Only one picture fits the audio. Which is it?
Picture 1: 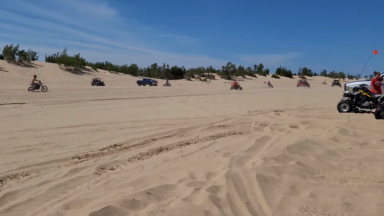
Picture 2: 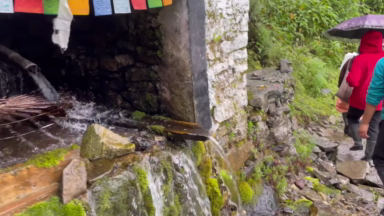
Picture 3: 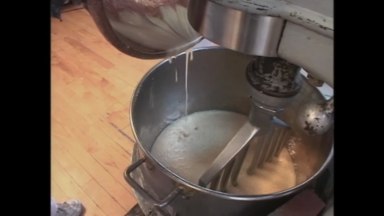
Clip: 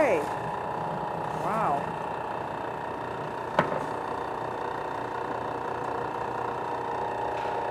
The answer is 3